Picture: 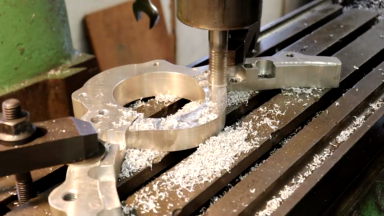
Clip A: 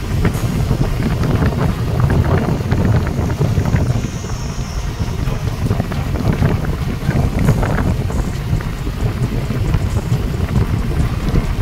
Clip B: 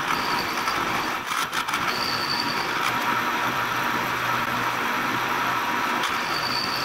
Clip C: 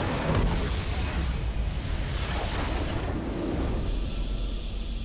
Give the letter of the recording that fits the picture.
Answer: B